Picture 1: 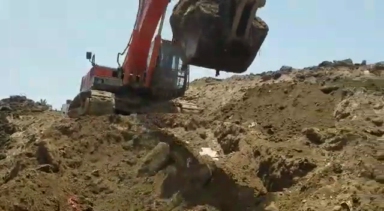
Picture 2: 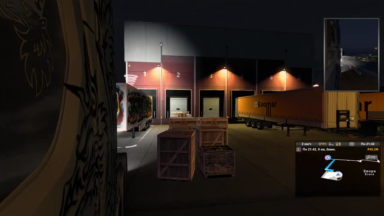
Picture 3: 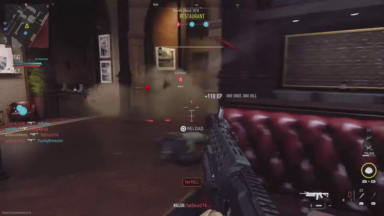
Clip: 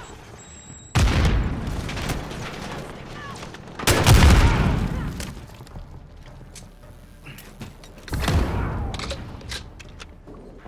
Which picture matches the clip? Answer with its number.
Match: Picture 3